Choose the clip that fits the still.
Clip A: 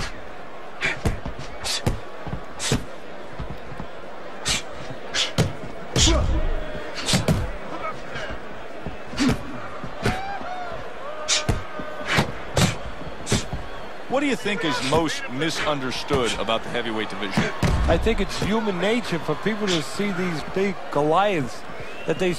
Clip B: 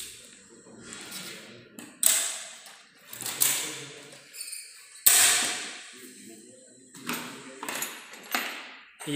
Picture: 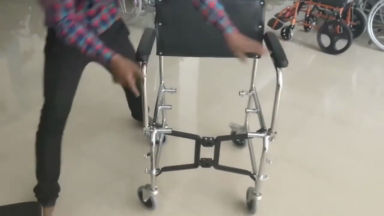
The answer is B